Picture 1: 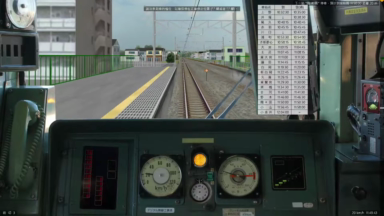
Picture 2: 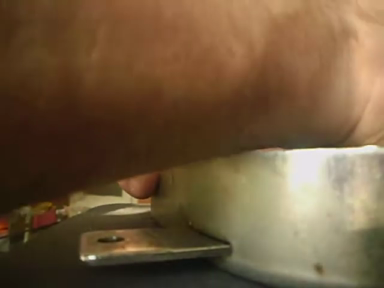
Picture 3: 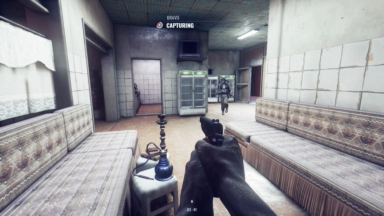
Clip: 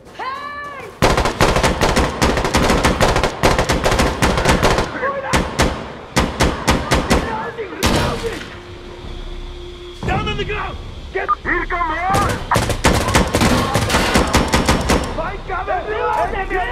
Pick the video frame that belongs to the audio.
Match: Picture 3